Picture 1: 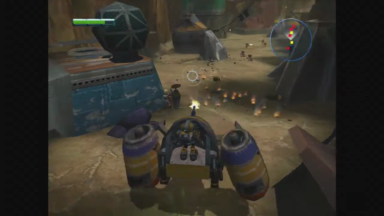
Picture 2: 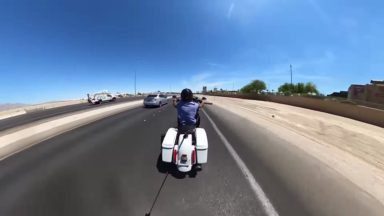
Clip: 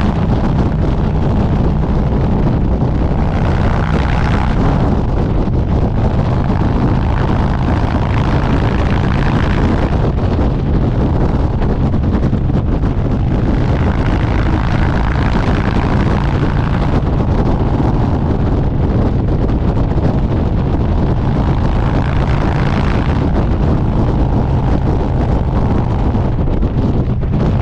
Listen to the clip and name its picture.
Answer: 2